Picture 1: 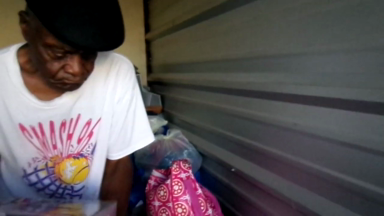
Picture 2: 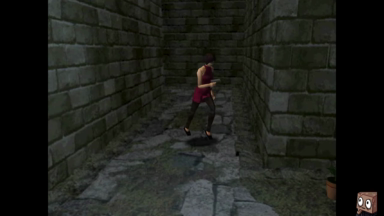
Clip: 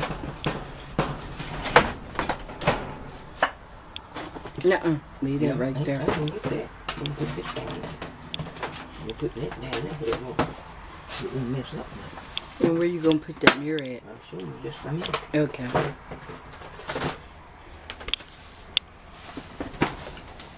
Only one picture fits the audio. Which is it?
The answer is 1